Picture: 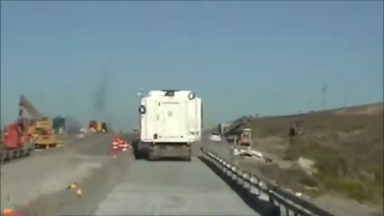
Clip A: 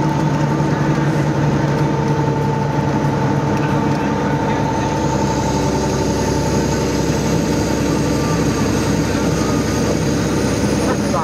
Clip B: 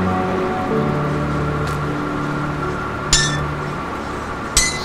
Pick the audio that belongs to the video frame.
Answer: A